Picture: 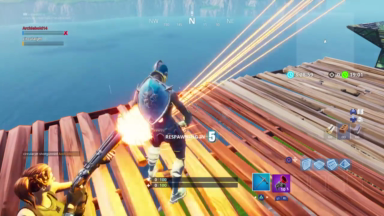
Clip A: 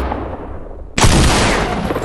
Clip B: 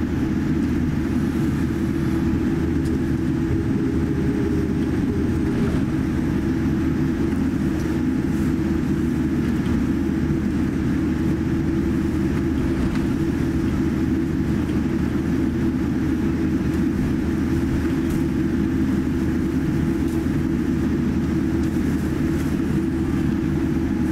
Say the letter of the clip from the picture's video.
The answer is A